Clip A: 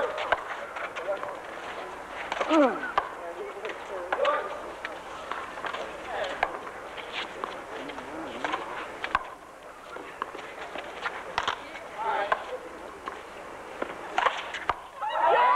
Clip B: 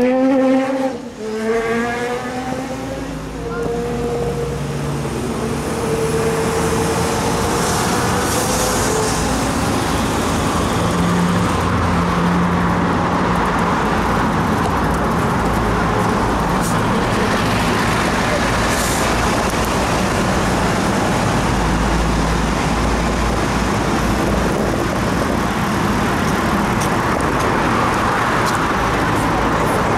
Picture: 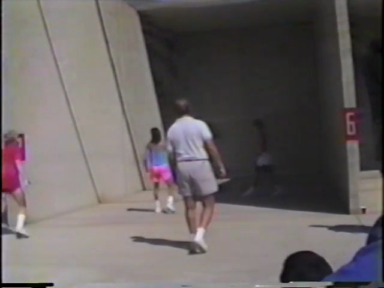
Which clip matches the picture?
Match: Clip A